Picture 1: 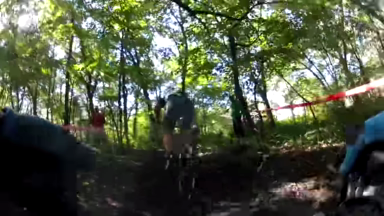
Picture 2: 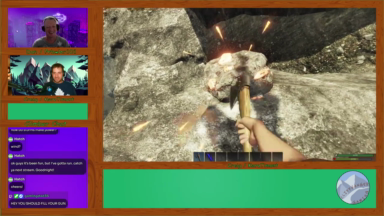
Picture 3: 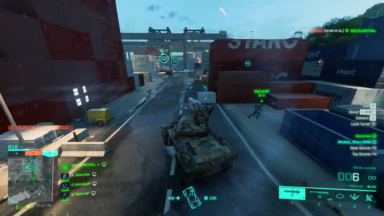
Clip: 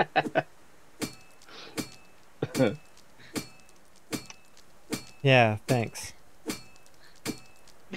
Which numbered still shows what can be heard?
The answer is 2